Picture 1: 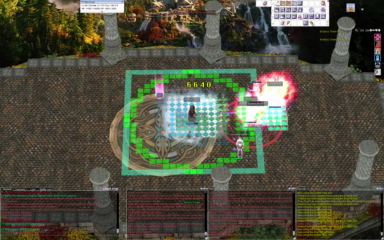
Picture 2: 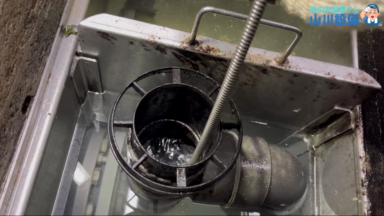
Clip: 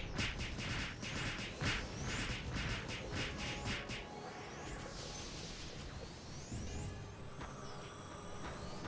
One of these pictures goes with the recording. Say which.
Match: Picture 1